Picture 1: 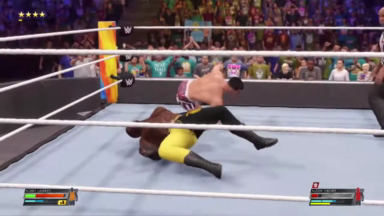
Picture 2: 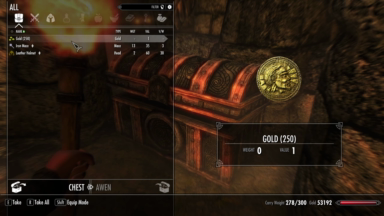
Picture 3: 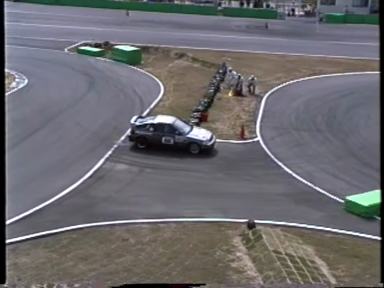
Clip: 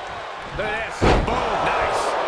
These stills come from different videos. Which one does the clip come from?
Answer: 1